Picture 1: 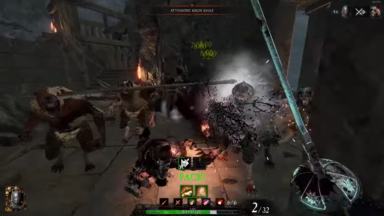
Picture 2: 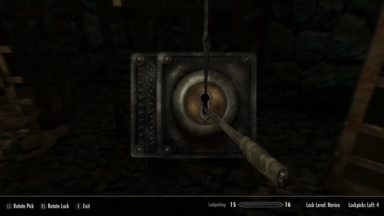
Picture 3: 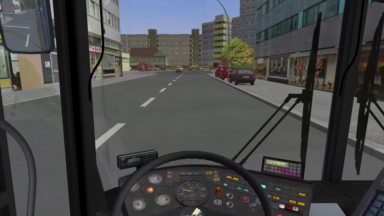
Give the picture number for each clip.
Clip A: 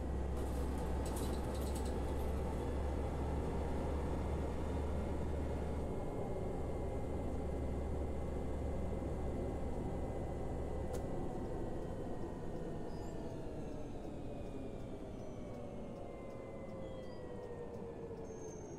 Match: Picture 3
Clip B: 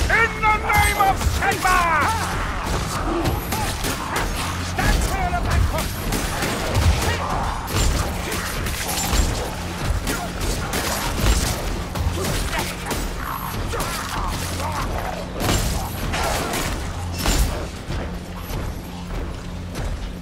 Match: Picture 1